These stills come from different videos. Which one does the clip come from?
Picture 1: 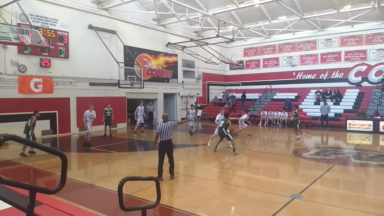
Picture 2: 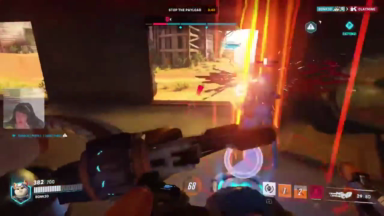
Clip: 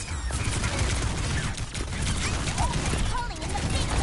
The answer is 2